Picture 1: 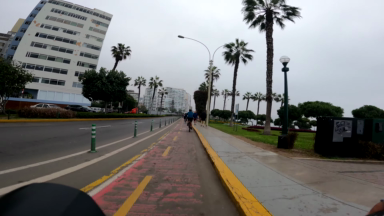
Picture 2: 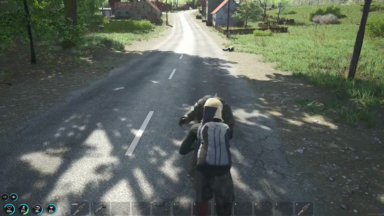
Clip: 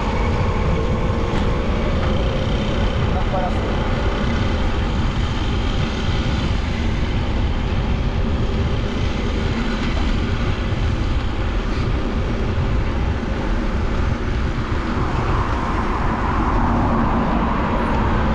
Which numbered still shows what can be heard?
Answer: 1